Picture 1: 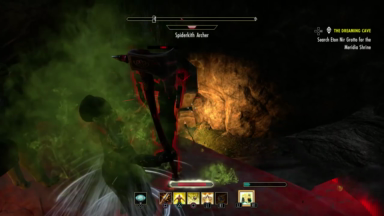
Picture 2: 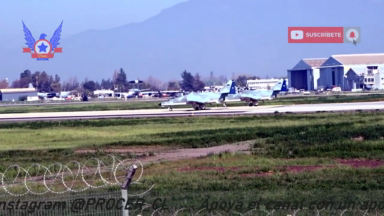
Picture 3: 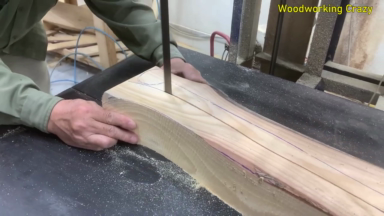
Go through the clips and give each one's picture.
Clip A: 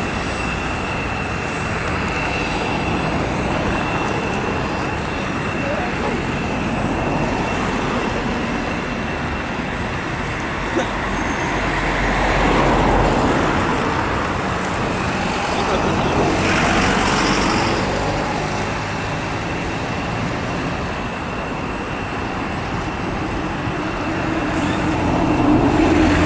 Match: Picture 2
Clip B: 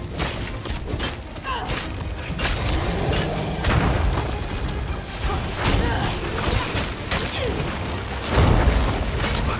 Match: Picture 1